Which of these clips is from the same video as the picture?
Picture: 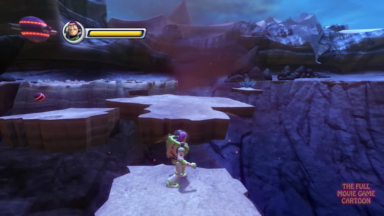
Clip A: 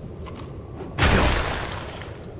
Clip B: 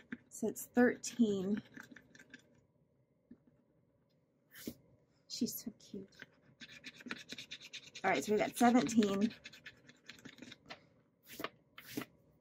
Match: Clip A